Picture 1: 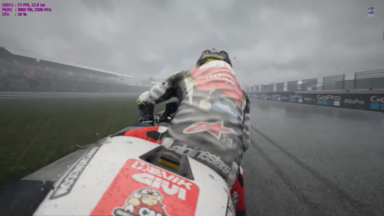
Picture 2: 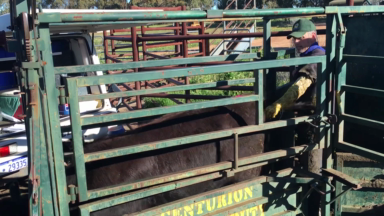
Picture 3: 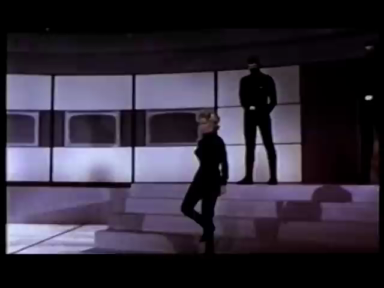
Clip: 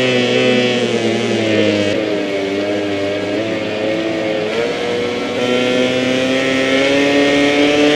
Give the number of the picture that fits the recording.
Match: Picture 1